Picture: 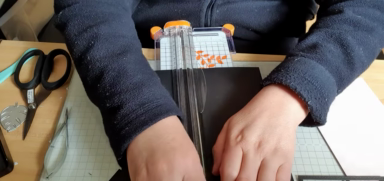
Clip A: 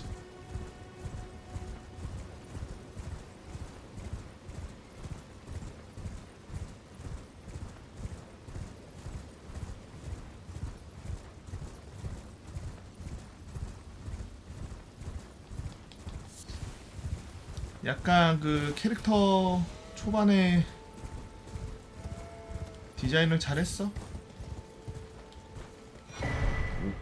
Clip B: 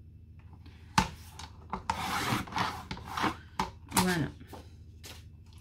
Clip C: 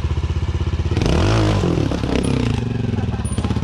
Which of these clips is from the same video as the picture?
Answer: B